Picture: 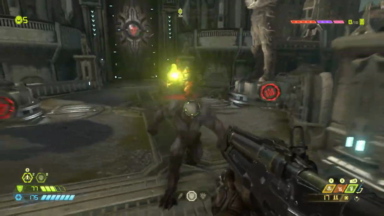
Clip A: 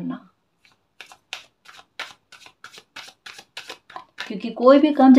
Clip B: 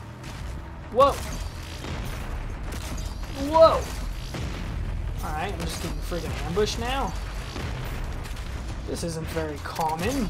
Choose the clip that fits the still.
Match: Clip B